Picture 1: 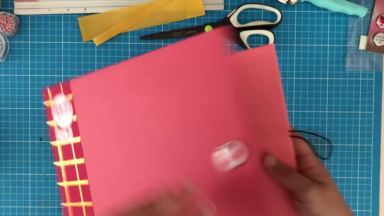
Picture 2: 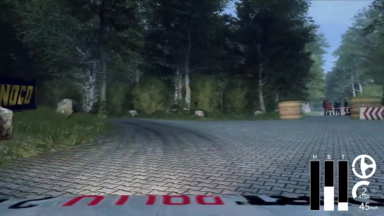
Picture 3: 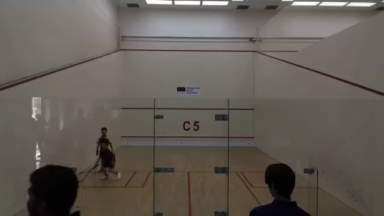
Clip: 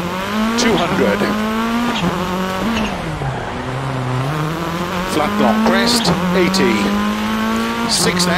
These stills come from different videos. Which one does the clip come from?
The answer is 2